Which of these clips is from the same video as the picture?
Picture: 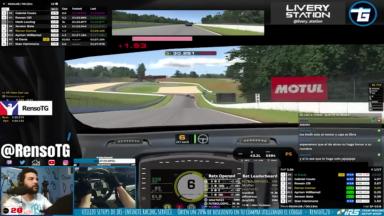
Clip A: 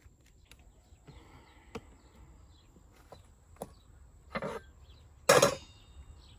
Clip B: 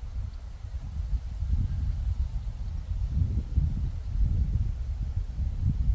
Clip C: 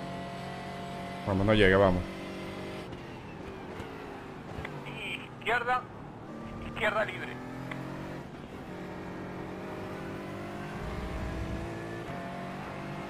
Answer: C